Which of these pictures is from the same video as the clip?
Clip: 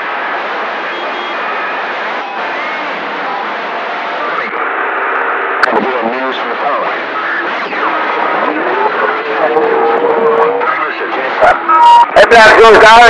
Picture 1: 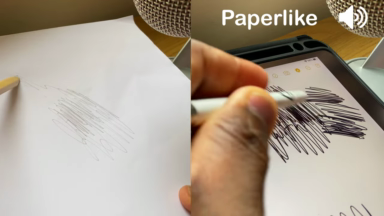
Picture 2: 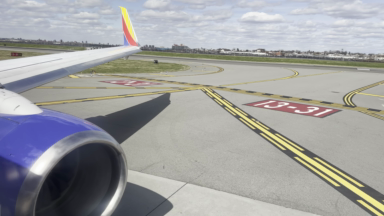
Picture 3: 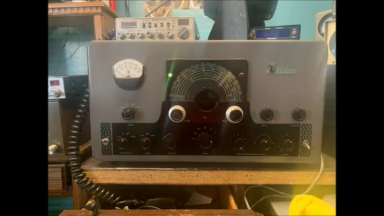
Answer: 3